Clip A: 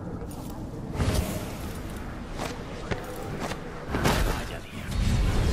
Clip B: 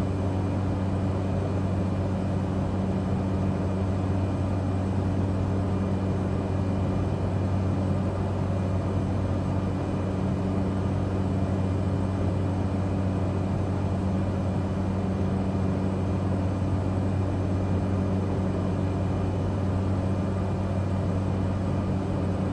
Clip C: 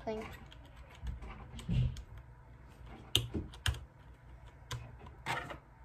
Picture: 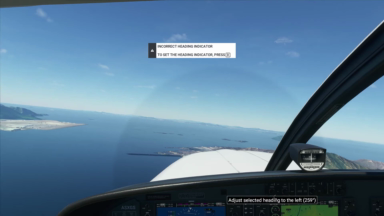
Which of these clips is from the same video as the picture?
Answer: B